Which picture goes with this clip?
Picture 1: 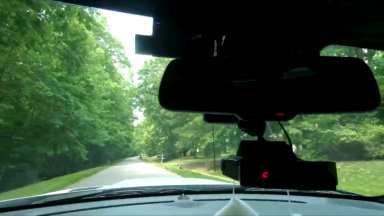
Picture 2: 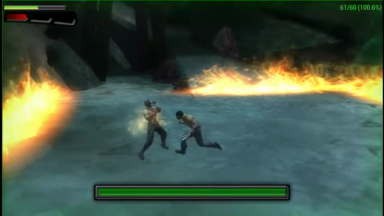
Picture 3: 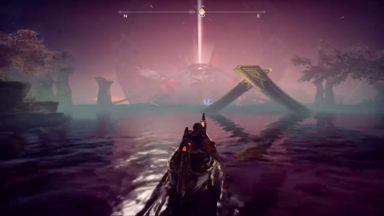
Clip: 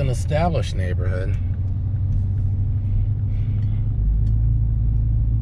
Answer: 1